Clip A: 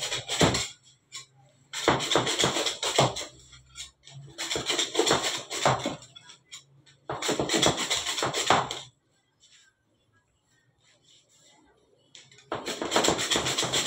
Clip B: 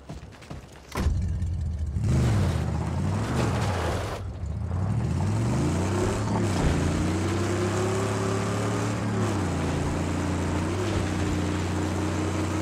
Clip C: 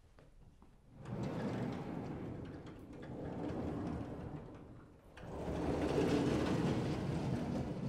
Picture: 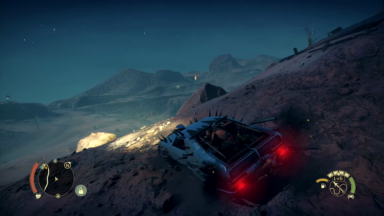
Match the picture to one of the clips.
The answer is B